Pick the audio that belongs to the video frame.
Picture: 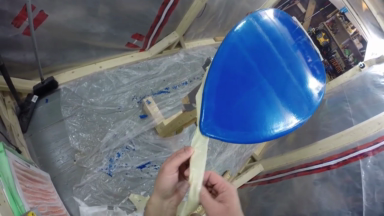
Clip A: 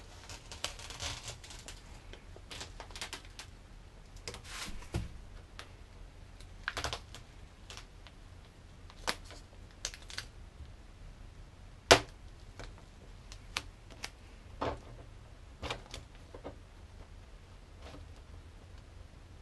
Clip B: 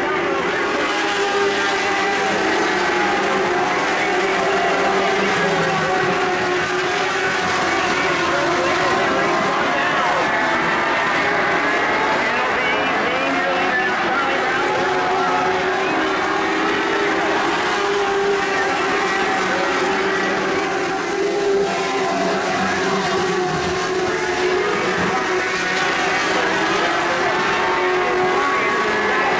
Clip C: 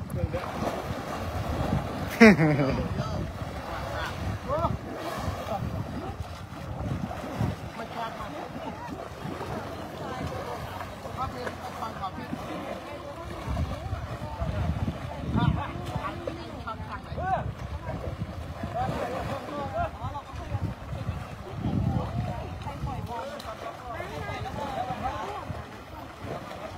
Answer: A